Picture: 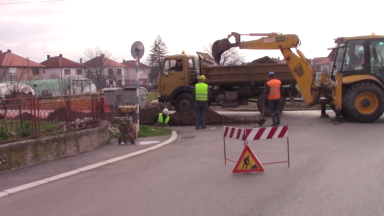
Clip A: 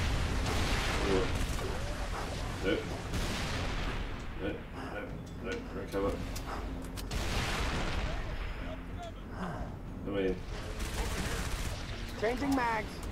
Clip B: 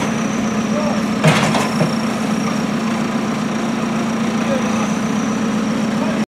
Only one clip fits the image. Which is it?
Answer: B